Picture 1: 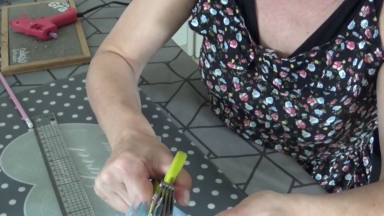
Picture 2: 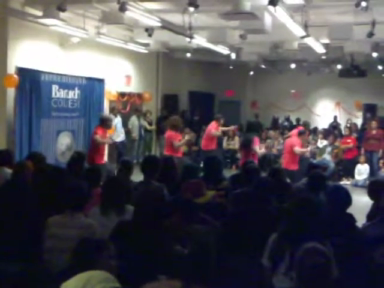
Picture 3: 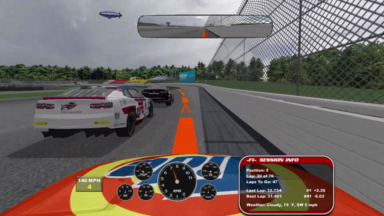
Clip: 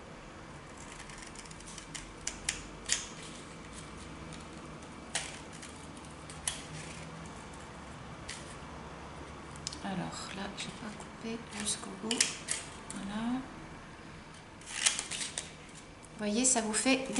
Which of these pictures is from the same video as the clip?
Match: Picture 1